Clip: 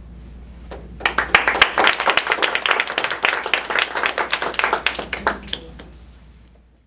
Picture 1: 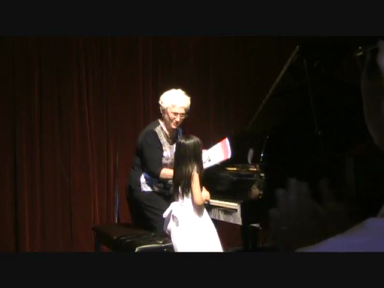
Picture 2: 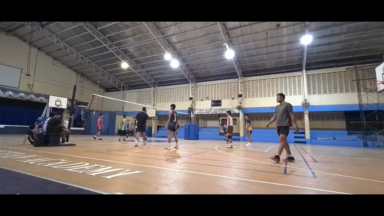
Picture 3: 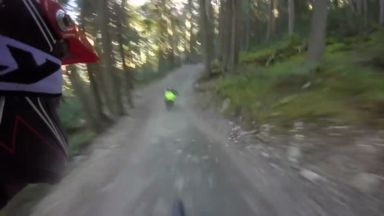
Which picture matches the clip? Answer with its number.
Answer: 1